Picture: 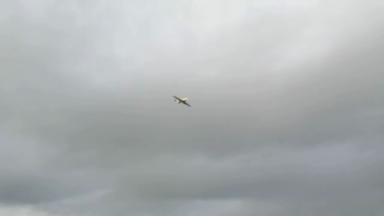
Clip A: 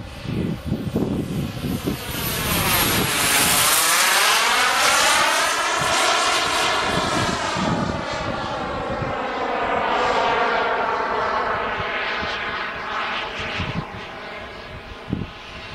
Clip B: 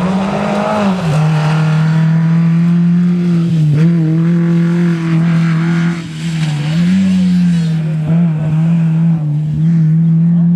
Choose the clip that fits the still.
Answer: A